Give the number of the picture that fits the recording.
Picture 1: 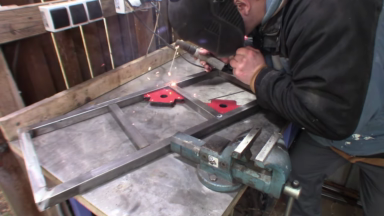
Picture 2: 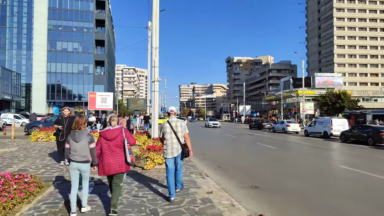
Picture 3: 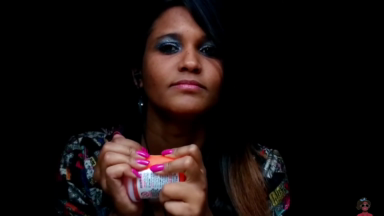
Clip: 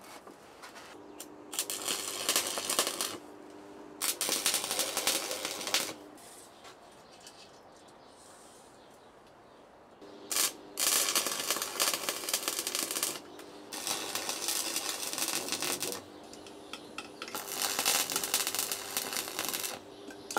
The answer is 1